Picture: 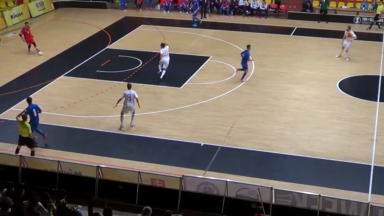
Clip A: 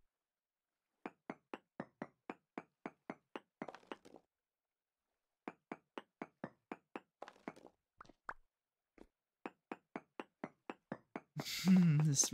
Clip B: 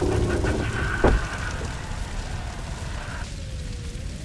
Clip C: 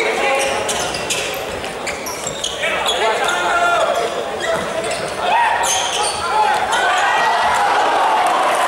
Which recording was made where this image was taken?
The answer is C